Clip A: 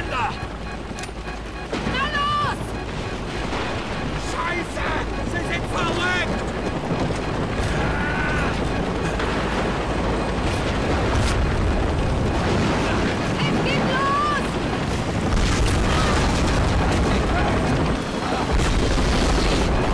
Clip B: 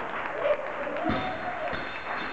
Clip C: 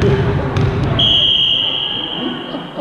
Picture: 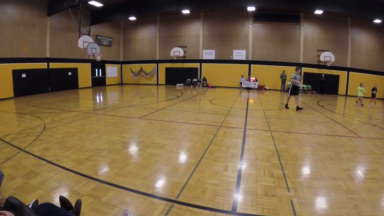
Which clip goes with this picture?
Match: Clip C